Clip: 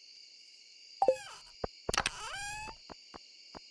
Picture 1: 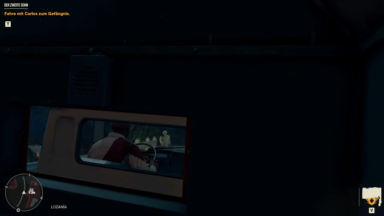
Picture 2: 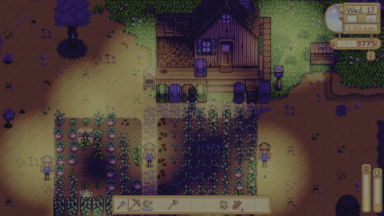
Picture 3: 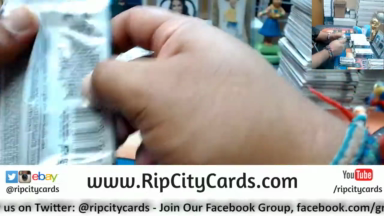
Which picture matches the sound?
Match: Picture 2